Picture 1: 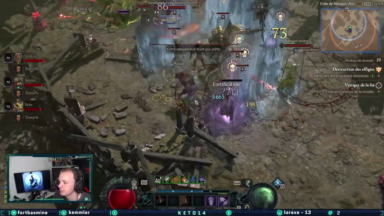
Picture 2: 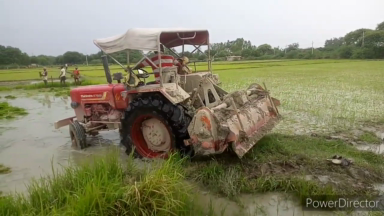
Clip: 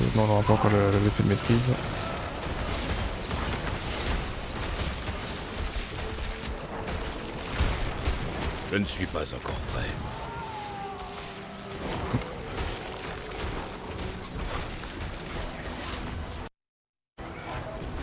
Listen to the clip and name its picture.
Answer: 1